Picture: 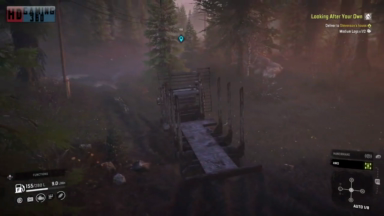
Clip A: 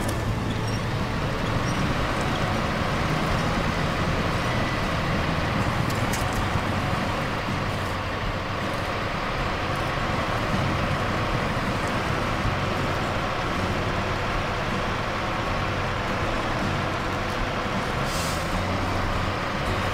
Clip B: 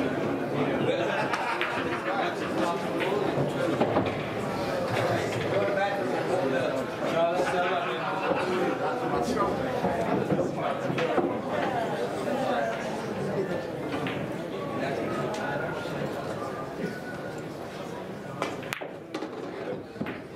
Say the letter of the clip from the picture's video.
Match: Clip A